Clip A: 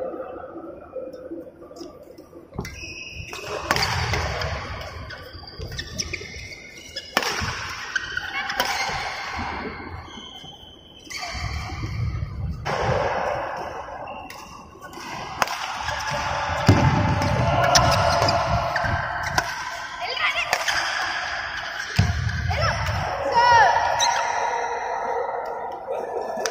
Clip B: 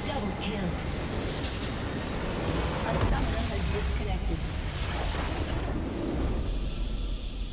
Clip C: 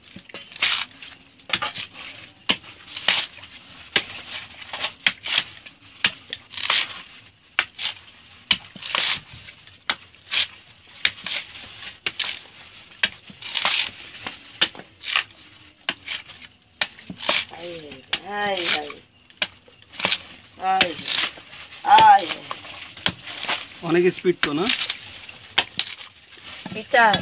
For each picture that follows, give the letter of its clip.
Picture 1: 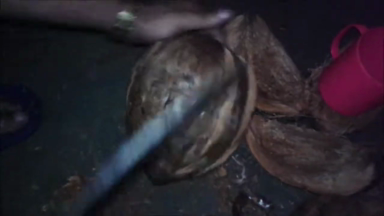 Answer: C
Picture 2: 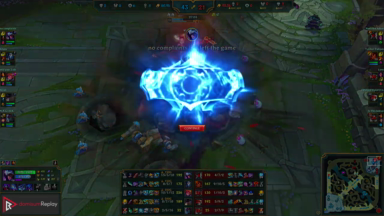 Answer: B